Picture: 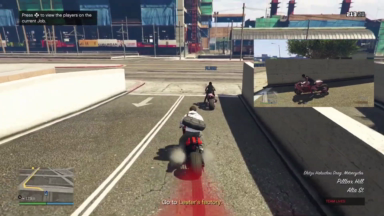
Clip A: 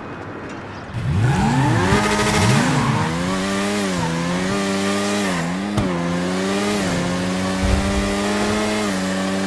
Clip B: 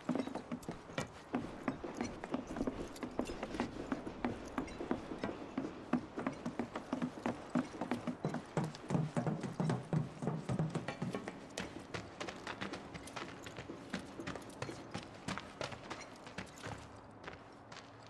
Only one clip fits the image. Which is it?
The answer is A